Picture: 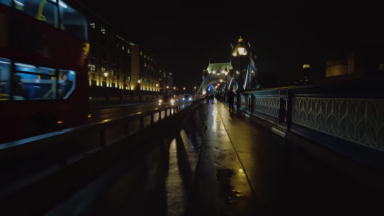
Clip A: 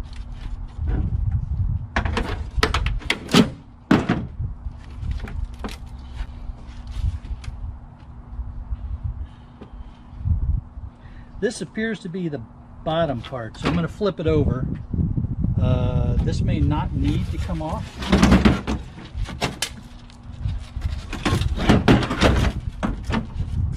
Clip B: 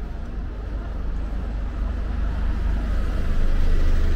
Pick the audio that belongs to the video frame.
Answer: B